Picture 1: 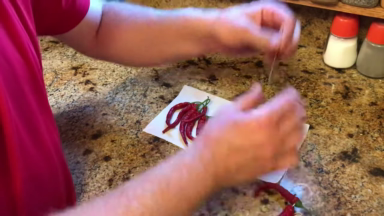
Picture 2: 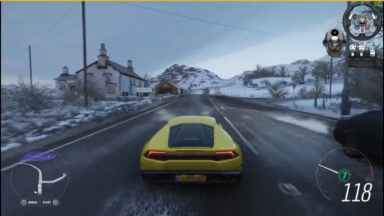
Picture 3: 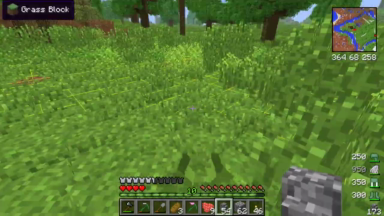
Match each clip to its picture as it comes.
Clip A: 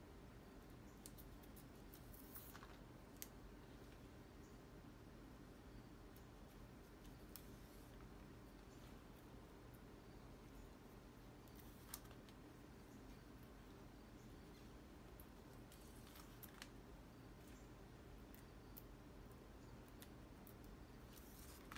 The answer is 1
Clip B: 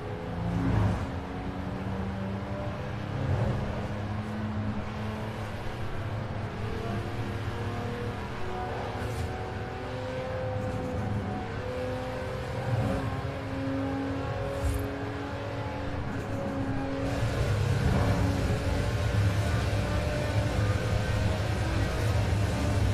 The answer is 2